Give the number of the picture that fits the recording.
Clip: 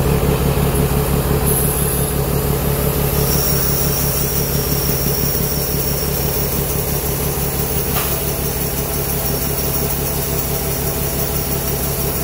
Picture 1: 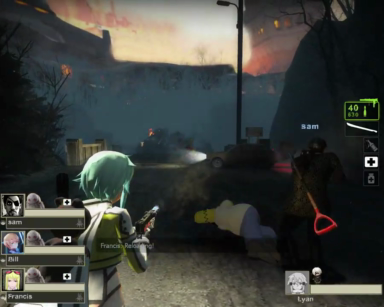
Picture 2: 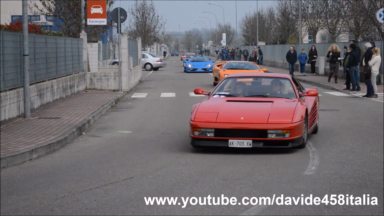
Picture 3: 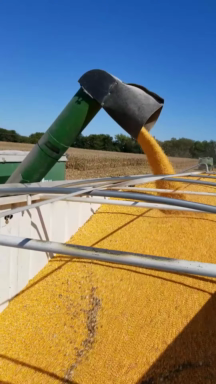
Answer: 3